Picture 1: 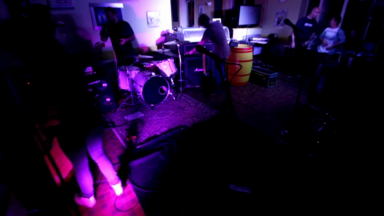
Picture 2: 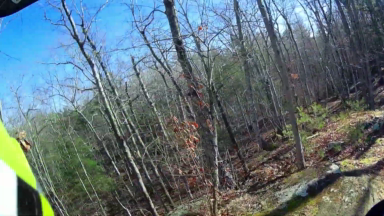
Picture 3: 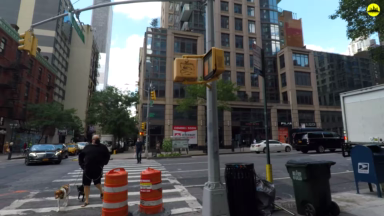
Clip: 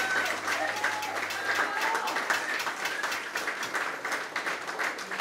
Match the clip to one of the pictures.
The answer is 1